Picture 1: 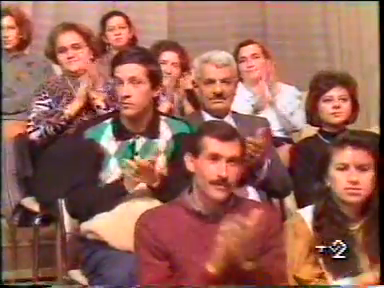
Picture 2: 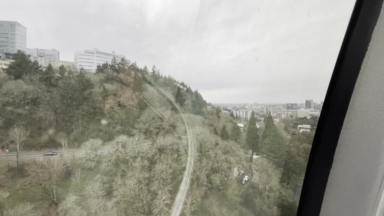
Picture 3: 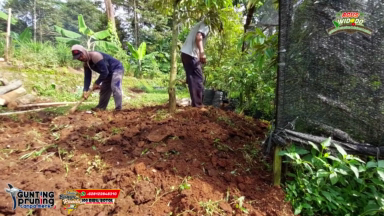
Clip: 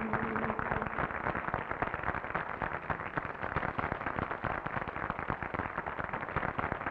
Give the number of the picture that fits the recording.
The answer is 1